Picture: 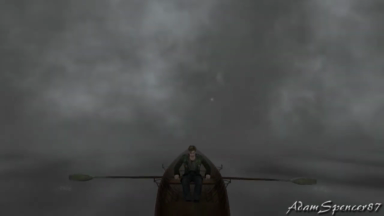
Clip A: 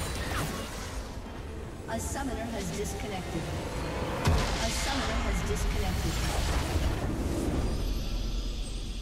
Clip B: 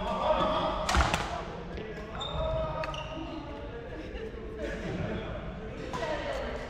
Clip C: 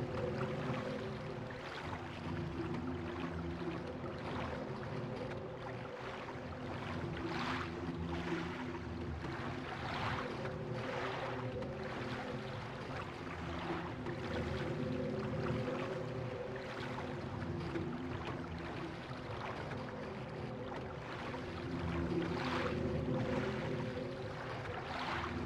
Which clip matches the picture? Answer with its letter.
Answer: C